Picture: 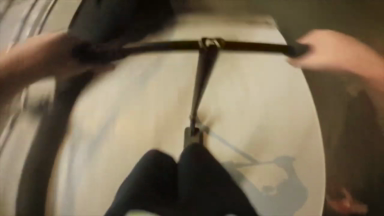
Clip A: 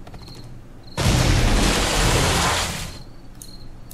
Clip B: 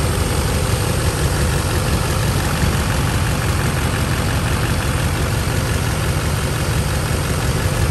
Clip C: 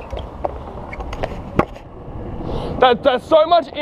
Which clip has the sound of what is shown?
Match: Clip C